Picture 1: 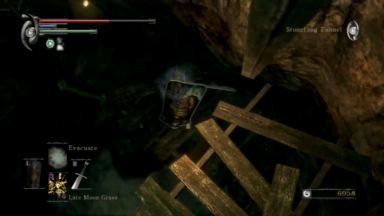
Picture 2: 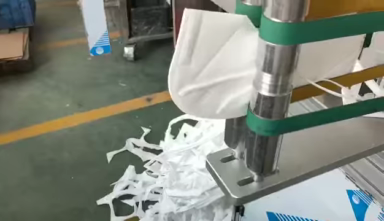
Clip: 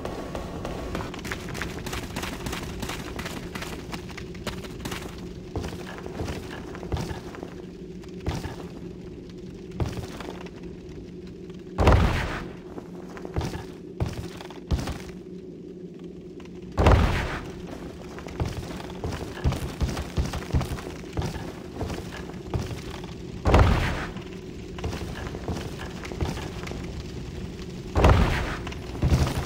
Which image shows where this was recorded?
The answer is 1